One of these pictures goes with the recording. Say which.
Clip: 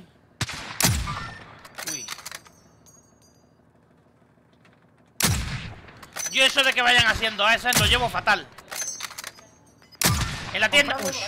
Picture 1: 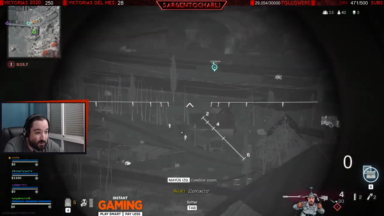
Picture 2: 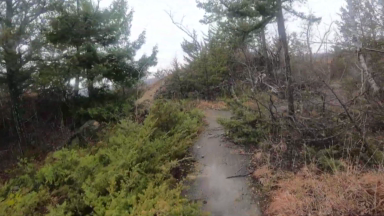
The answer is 1